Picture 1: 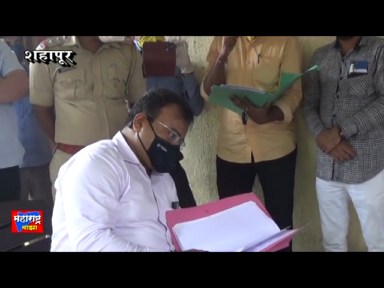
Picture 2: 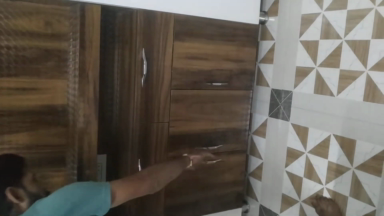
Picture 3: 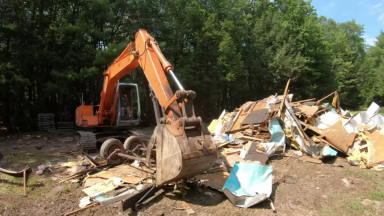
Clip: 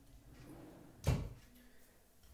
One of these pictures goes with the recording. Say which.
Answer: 2